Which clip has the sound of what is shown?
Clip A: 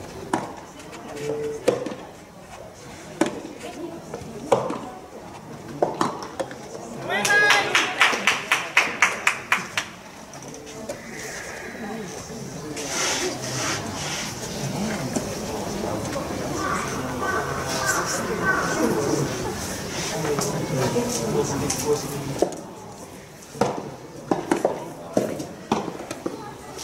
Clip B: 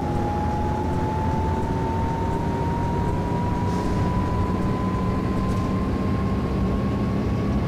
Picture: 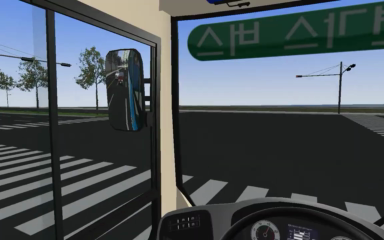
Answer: B